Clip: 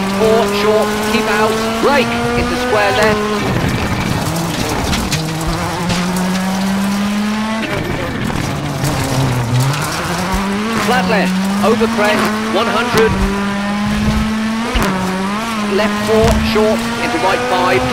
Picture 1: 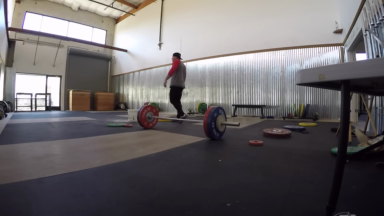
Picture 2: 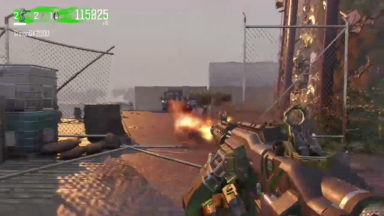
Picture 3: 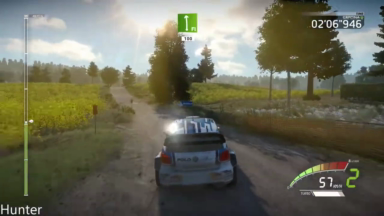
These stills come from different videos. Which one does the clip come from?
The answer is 3